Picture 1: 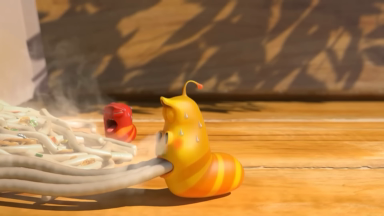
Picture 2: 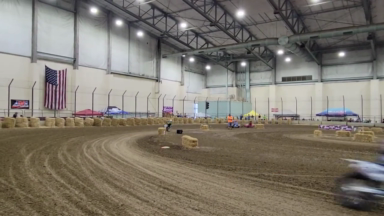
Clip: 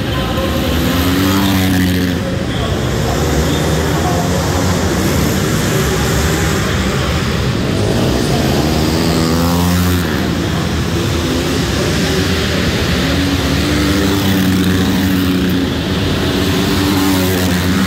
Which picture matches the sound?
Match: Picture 2